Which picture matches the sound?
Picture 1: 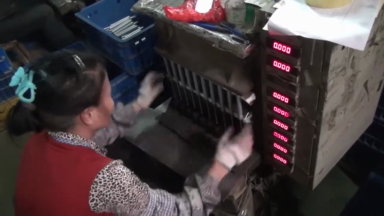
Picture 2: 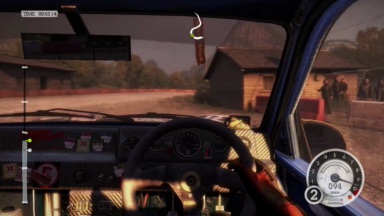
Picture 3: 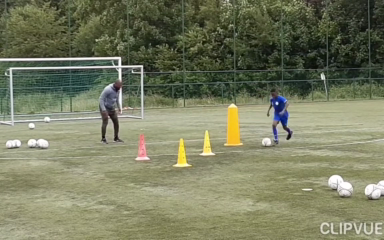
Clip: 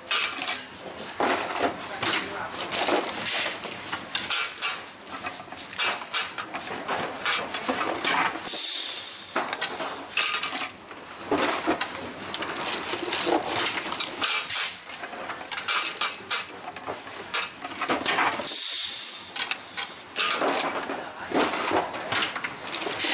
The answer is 1